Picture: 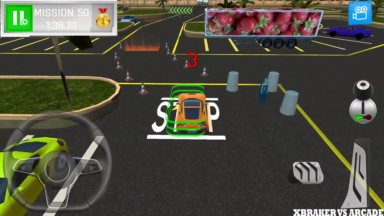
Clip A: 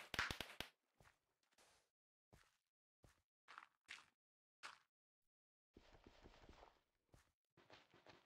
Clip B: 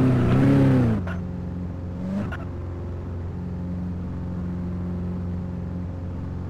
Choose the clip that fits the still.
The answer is B